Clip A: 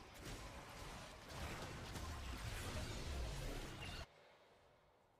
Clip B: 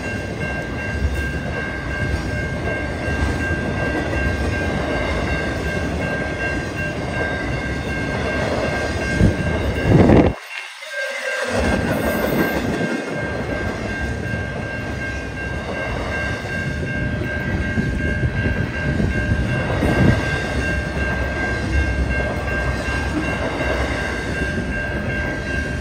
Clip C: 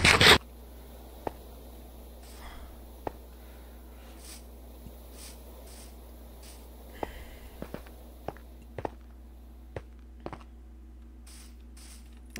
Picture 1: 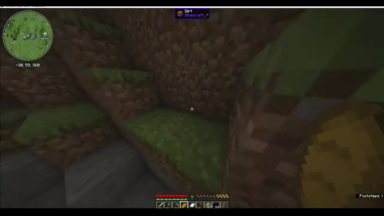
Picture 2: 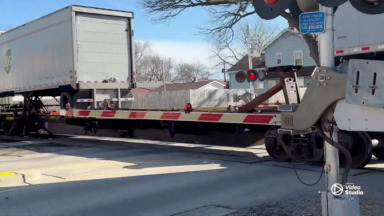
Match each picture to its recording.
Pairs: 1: C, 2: B